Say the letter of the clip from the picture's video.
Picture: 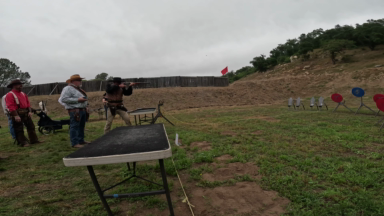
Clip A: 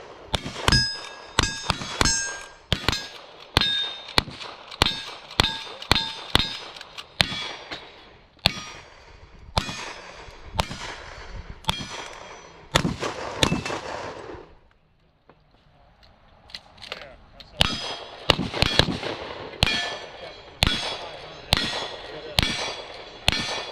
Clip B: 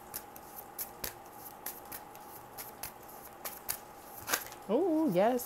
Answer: A